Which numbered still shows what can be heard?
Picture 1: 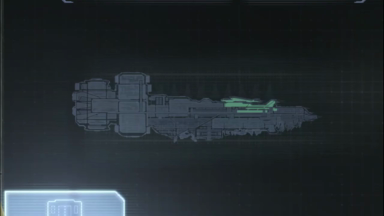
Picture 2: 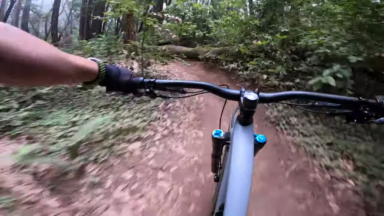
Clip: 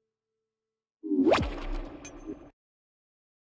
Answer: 1